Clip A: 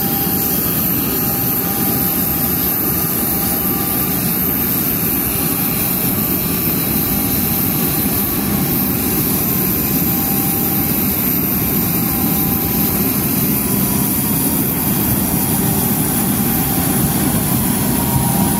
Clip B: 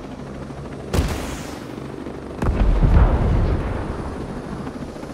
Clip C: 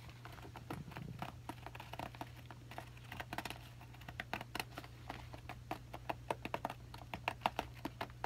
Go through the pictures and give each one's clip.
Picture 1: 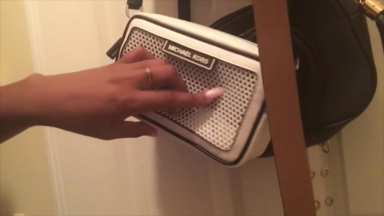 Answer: C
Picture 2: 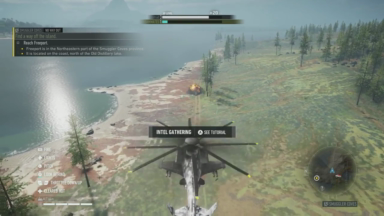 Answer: B